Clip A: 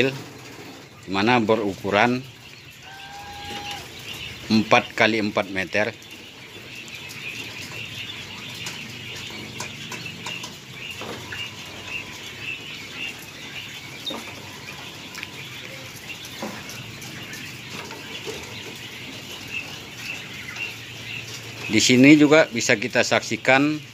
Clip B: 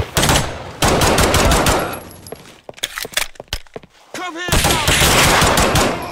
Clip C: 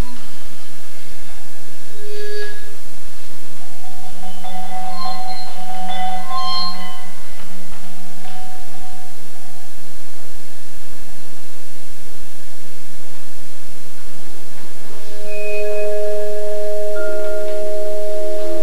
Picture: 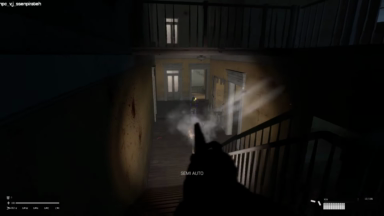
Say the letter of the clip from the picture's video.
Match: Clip B